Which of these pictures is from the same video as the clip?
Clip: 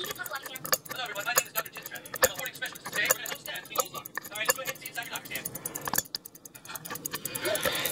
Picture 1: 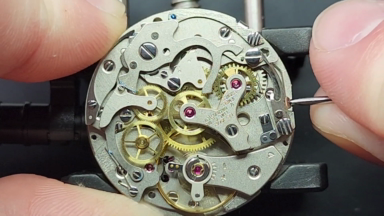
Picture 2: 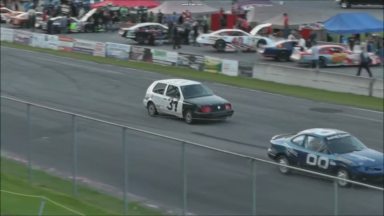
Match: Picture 1